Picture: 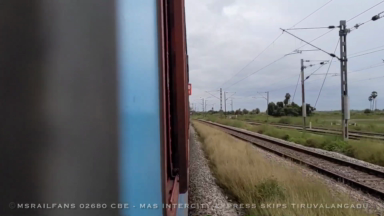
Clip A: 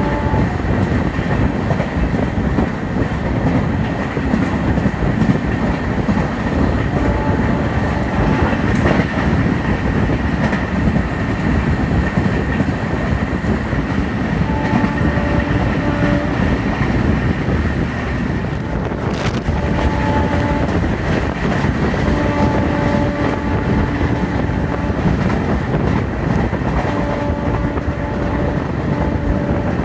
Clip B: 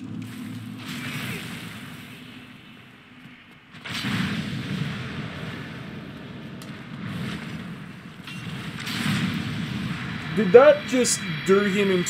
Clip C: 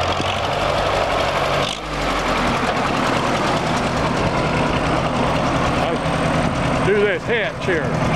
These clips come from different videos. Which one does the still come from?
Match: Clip A